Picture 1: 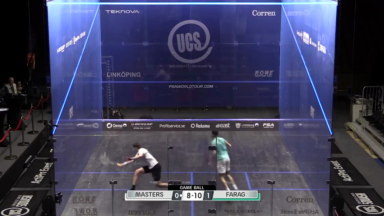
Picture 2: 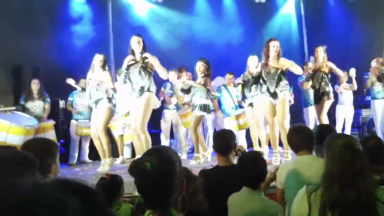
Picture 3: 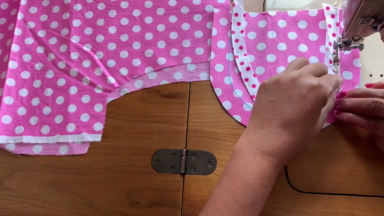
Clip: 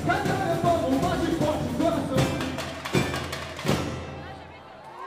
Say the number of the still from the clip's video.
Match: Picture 2